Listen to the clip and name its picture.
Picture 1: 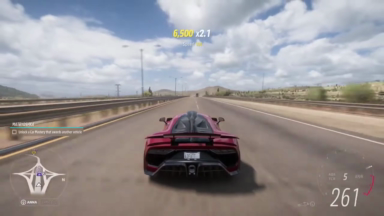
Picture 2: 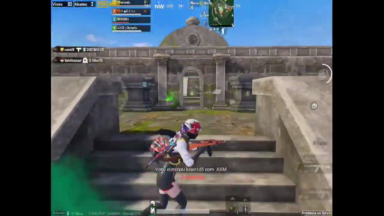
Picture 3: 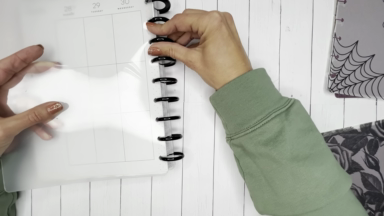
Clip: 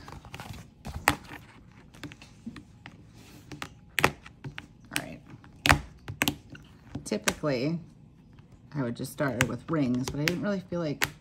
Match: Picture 3